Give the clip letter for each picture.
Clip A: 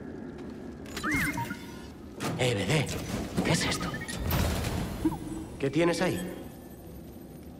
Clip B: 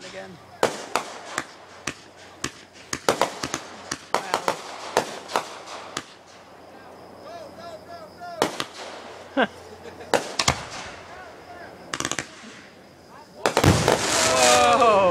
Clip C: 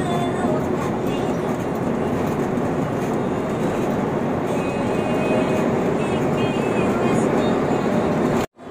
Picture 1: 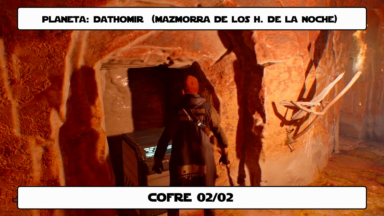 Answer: A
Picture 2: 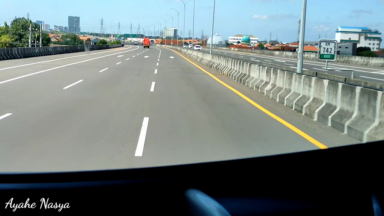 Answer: C